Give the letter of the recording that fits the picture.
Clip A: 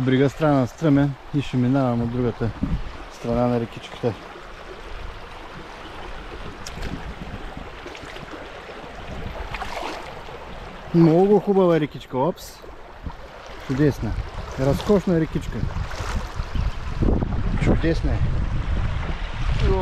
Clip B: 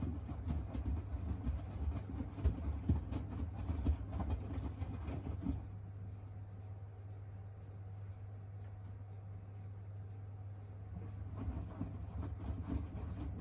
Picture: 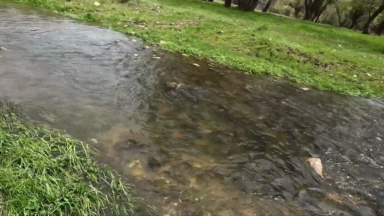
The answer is A